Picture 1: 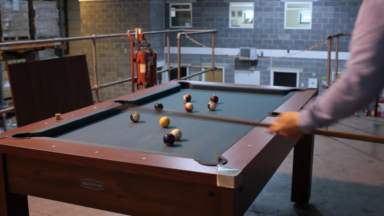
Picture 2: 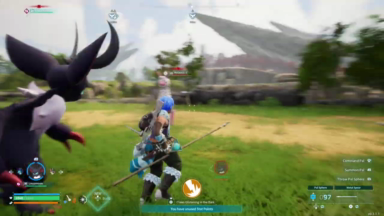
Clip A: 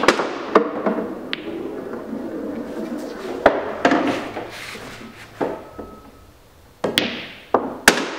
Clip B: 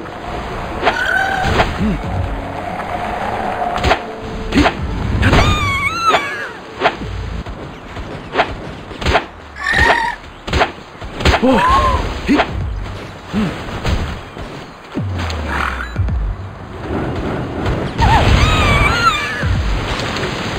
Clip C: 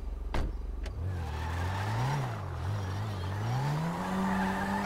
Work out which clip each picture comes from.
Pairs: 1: A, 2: B